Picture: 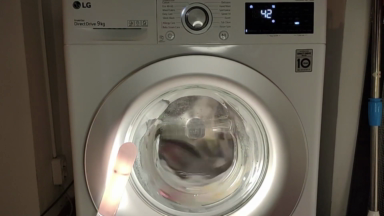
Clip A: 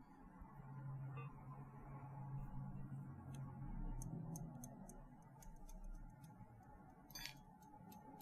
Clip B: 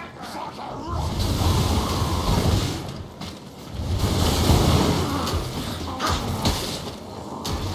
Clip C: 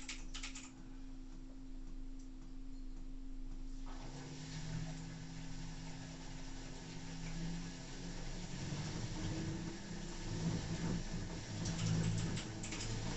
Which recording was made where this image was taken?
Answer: C